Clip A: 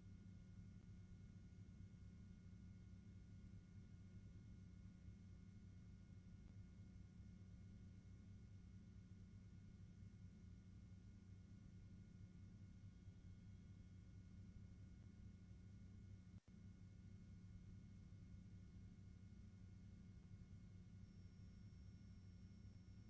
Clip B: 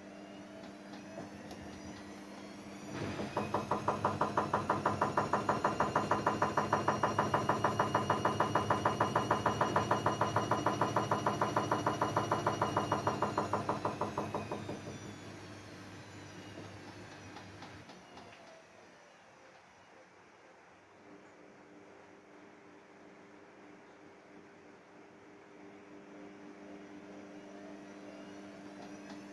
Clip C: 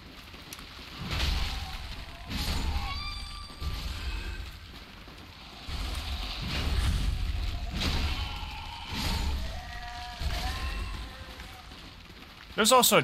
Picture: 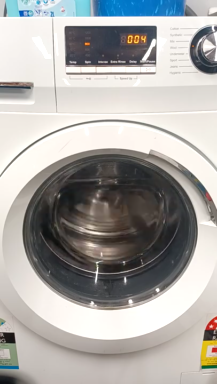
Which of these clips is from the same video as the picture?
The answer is B